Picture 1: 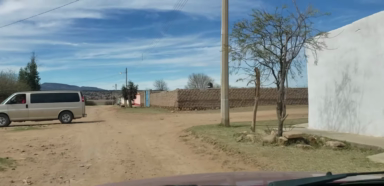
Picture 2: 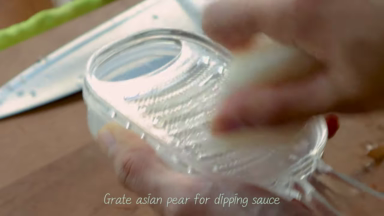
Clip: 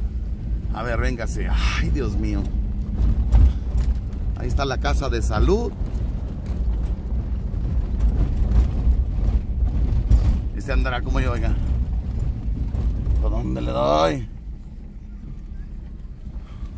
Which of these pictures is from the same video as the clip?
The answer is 1